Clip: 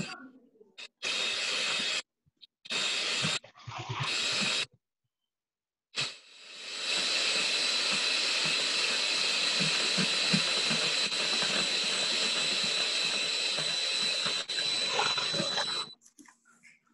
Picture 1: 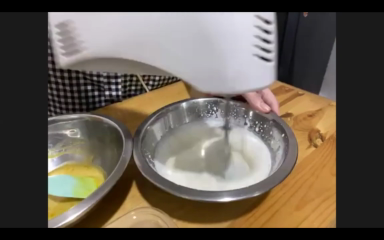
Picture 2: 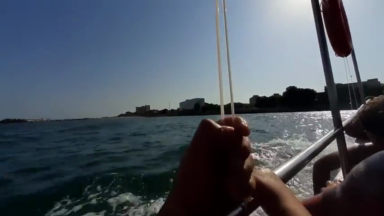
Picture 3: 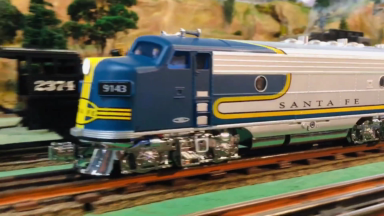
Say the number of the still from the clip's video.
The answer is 1